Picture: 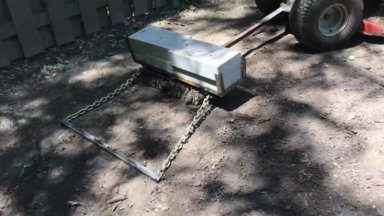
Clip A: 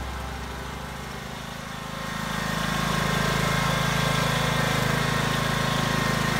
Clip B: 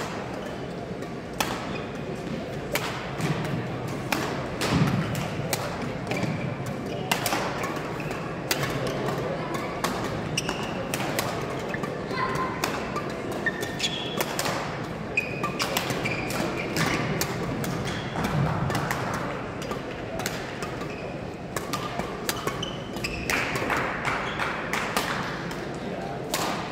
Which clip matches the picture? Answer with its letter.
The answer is A